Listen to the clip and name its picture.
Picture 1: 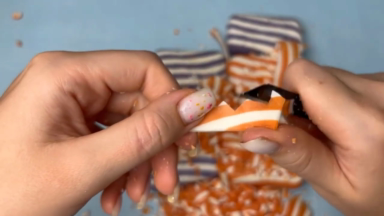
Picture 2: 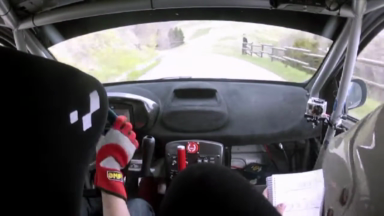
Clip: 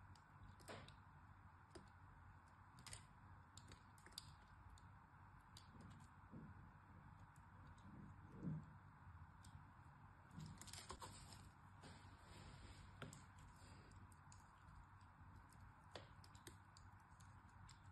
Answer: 1